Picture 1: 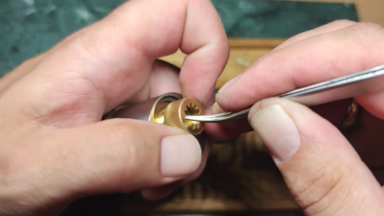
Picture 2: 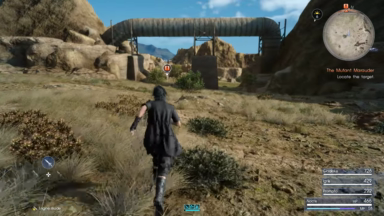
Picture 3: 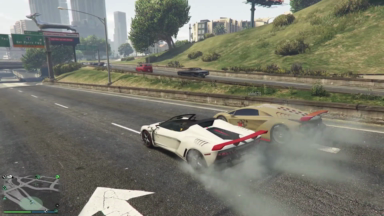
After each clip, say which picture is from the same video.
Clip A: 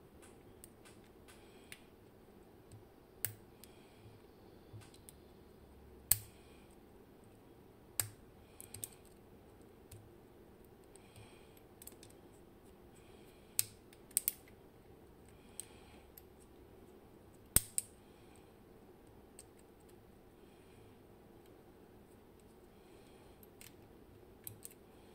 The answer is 1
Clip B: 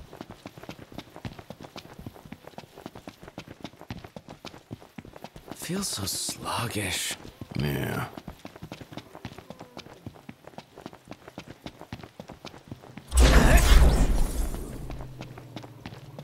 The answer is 2